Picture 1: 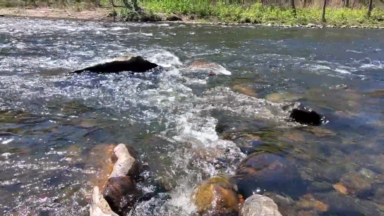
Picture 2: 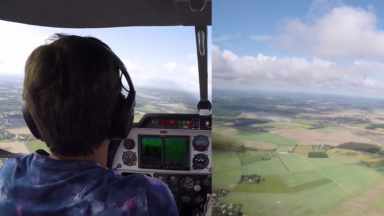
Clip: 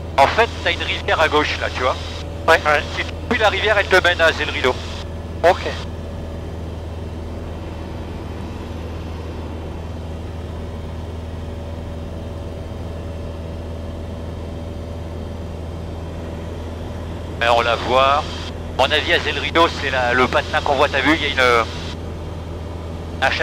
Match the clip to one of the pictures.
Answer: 2